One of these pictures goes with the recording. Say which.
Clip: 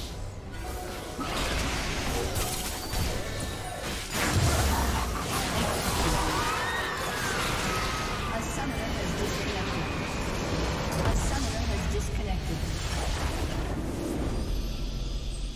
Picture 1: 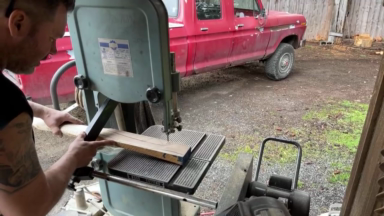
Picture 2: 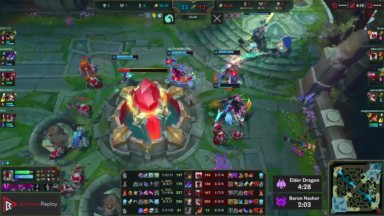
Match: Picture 2